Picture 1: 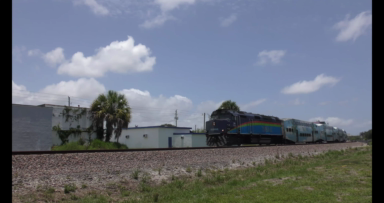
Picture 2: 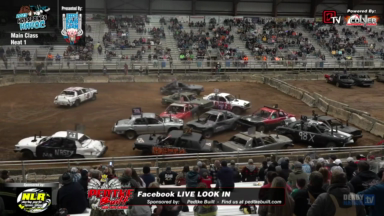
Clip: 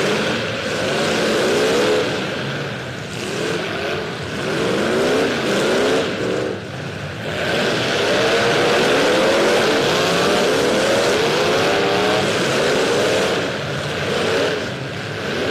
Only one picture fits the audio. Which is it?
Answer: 2